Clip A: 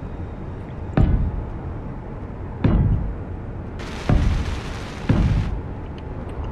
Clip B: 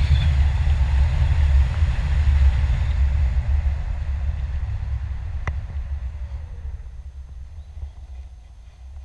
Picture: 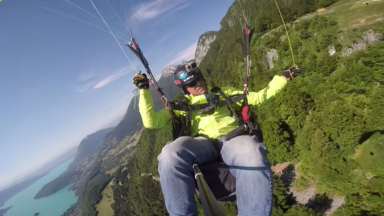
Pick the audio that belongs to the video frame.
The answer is B